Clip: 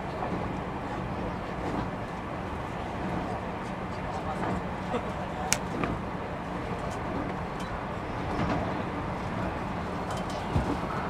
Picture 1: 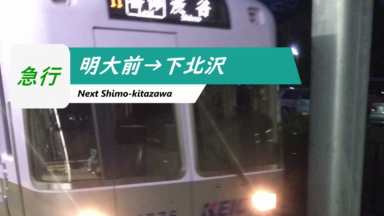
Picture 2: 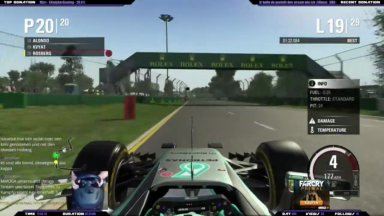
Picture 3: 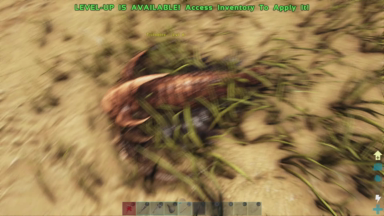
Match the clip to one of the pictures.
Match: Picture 1